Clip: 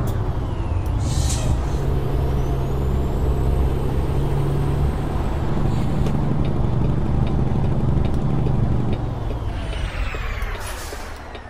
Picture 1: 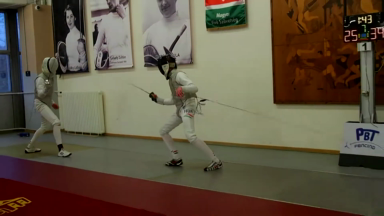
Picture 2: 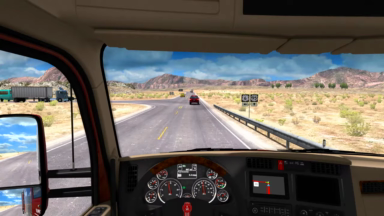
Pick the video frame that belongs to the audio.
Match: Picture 2